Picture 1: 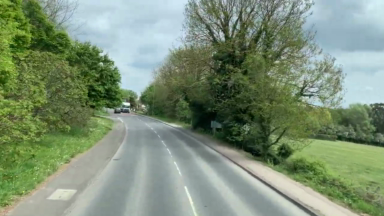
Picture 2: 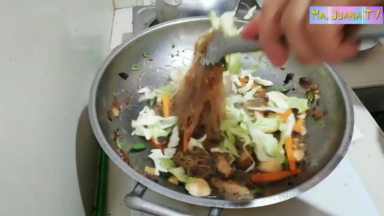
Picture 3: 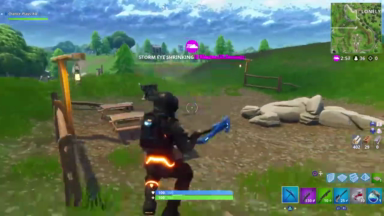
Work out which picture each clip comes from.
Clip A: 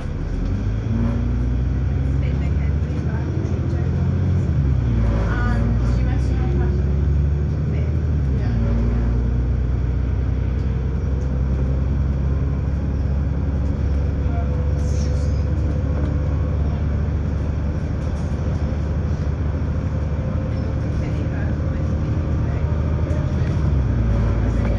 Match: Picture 1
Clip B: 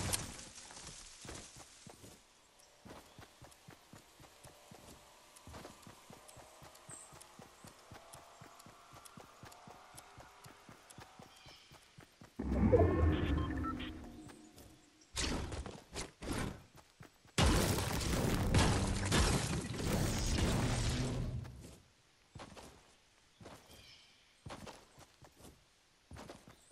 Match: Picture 3